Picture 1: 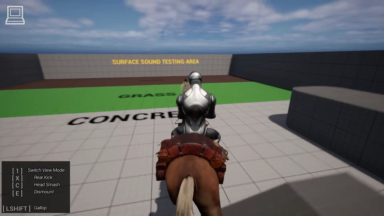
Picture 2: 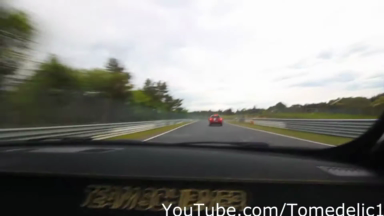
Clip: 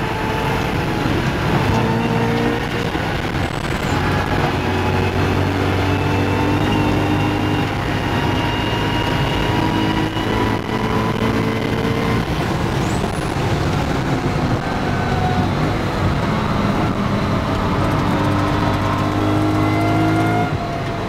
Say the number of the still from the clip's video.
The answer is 2